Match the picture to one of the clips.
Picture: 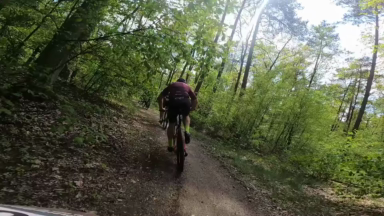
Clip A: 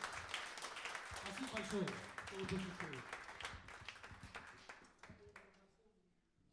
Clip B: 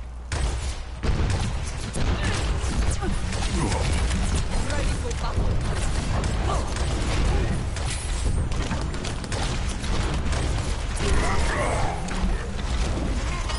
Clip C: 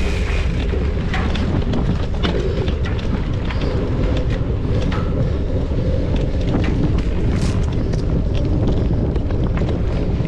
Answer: C